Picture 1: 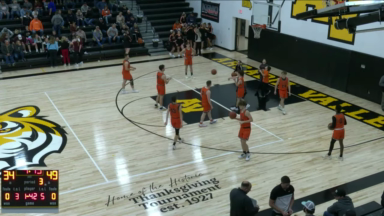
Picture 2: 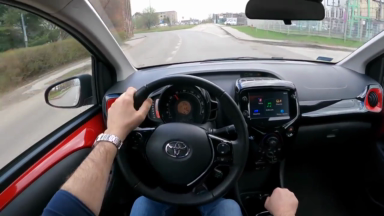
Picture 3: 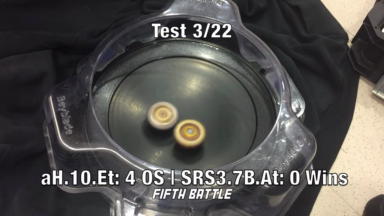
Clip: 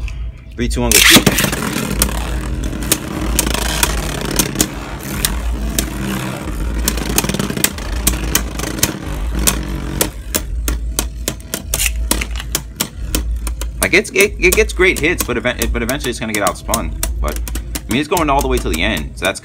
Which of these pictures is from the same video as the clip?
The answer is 3